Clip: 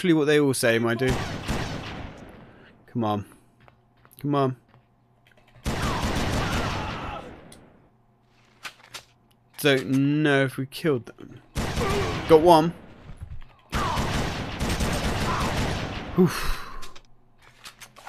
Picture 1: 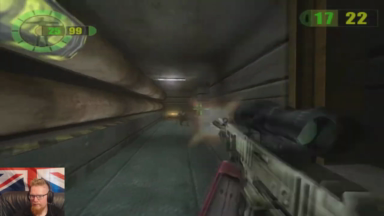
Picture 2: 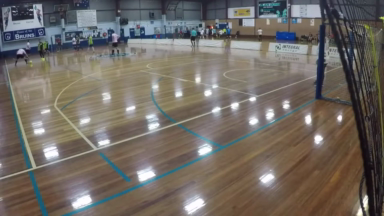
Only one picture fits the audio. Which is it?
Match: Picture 1